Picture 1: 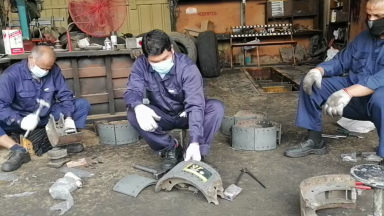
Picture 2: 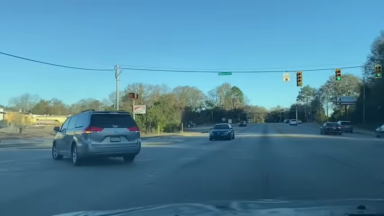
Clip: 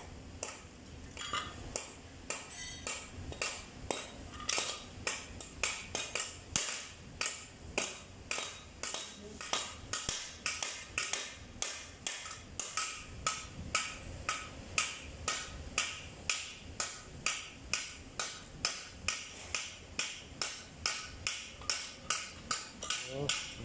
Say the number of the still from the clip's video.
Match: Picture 1